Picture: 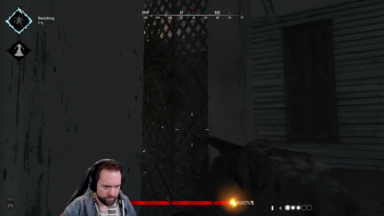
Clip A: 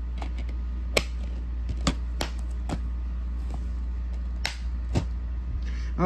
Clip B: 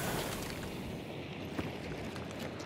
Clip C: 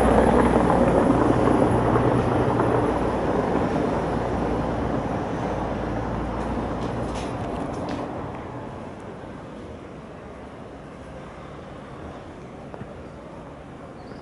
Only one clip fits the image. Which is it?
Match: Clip B